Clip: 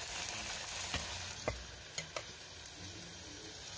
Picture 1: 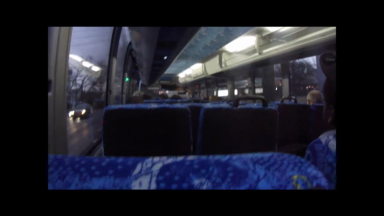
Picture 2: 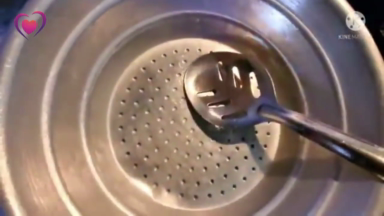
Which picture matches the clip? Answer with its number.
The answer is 2